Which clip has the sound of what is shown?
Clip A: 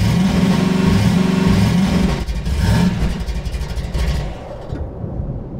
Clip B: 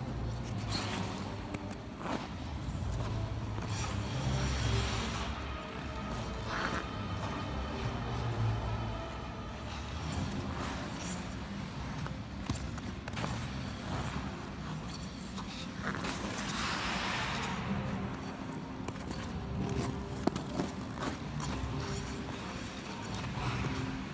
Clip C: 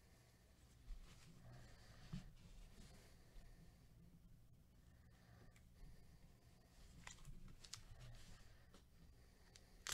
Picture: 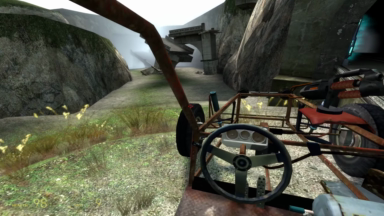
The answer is A